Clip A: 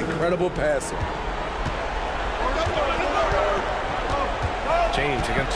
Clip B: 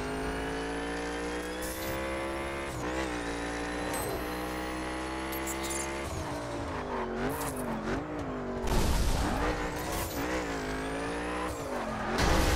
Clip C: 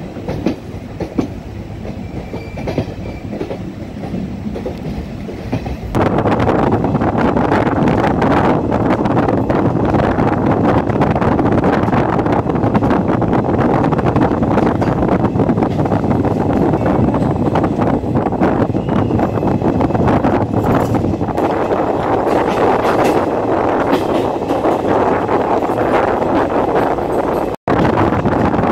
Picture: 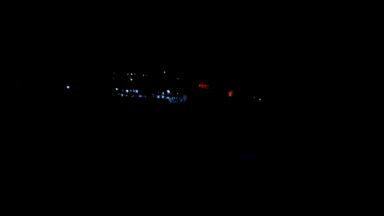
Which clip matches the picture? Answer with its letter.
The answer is C